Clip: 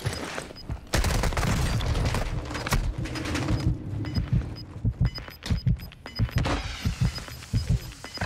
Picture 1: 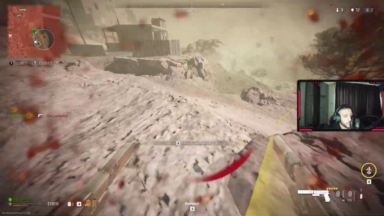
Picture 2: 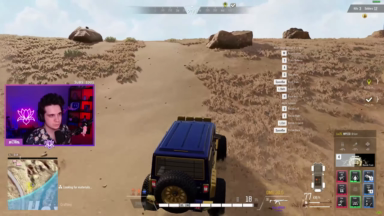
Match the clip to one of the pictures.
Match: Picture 1